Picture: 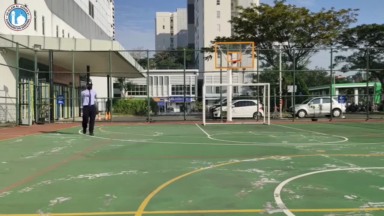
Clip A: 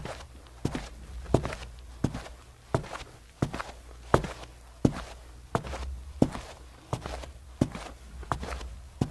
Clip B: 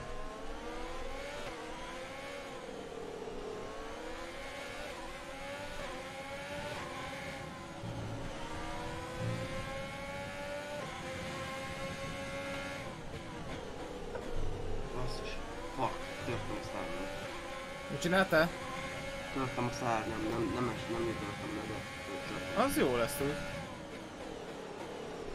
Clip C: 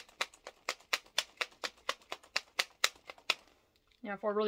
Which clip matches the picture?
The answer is A